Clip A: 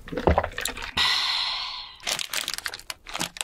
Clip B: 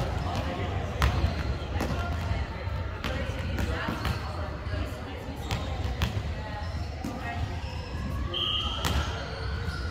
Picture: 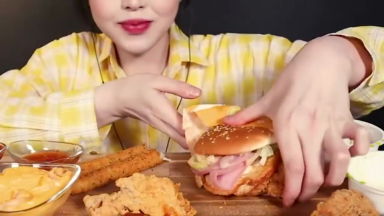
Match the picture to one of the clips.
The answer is A